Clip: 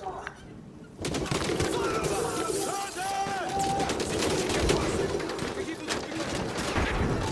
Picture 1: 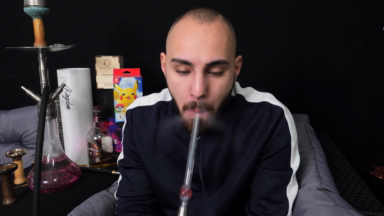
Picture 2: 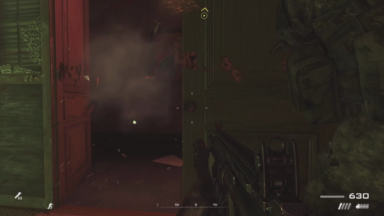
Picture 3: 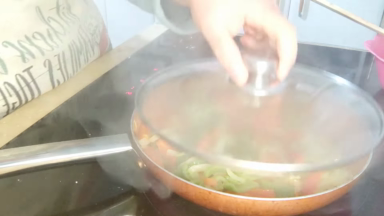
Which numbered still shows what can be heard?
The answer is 2